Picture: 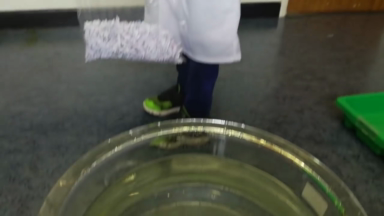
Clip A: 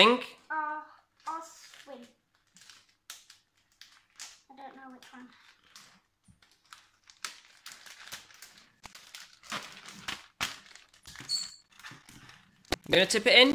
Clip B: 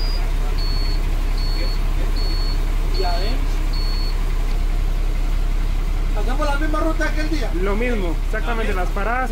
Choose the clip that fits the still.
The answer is A